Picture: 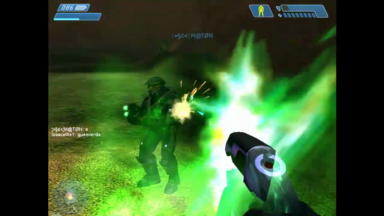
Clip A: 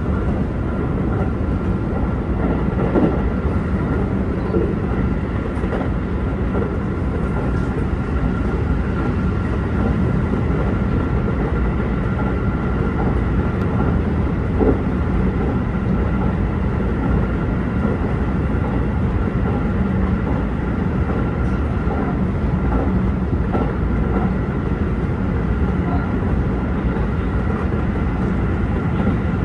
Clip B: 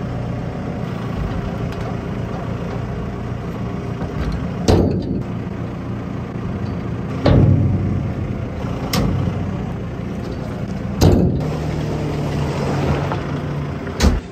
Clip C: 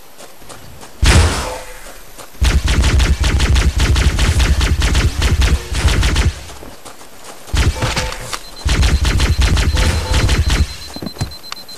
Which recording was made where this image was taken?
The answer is C